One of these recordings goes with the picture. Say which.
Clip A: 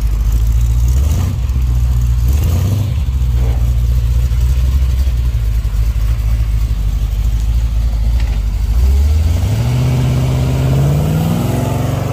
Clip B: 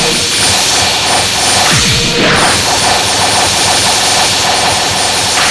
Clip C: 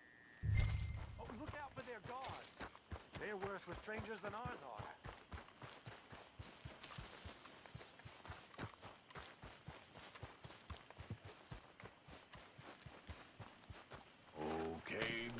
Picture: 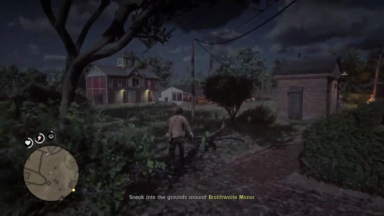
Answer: C